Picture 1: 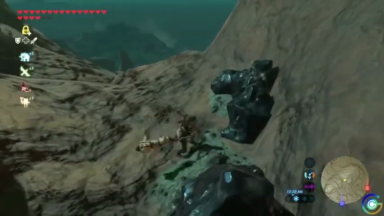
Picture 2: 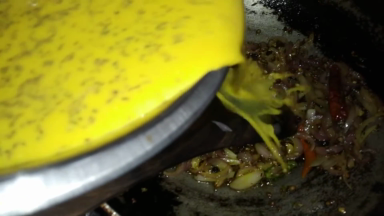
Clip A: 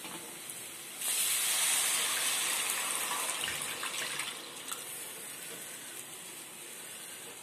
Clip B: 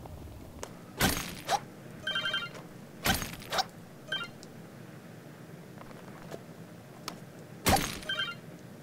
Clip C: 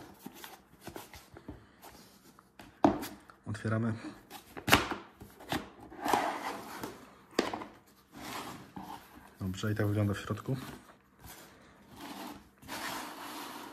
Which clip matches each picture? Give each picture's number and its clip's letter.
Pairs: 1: B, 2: A